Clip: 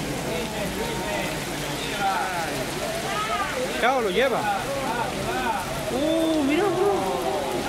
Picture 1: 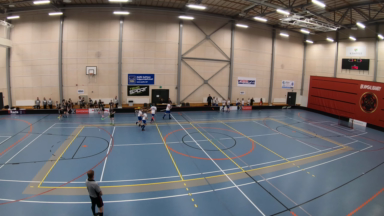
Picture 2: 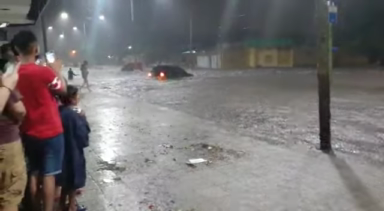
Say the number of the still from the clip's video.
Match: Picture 2